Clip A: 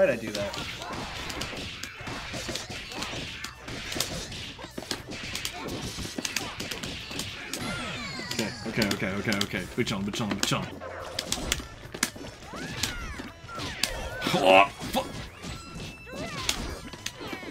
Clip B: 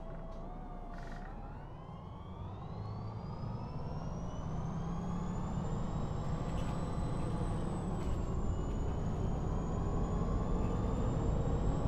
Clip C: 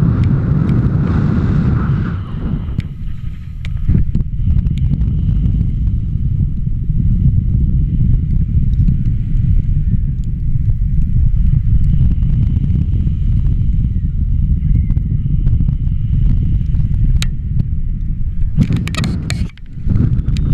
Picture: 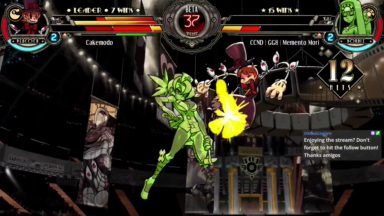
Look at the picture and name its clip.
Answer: A